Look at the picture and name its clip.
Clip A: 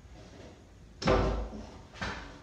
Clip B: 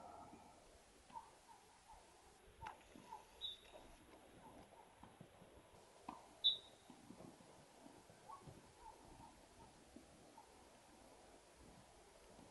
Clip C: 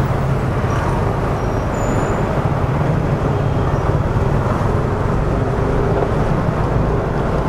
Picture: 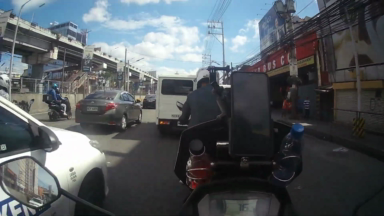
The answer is C